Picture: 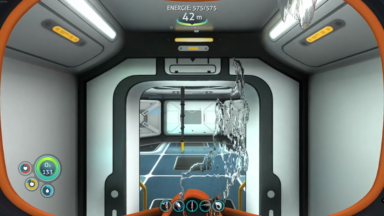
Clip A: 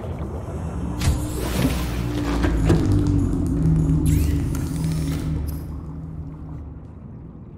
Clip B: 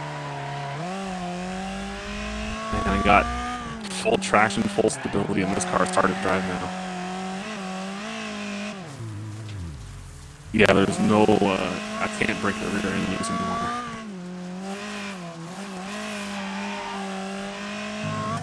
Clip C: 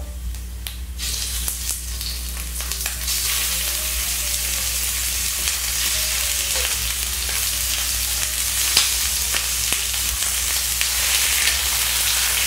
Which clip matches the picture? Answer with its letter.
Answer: A